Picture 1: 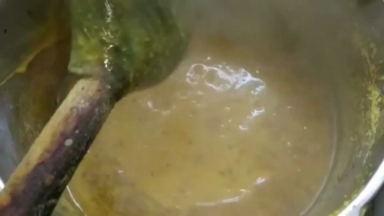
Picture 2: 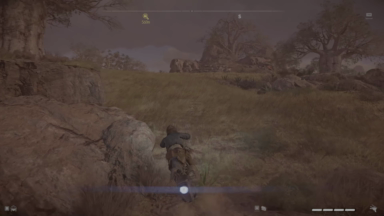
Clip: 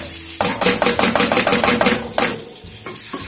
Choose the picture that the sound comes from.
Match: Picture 1